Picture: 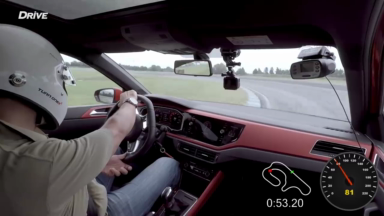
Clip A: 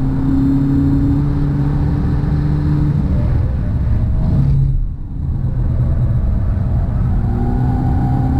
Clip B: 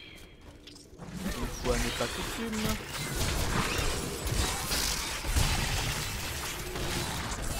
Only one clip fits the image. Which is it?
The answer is A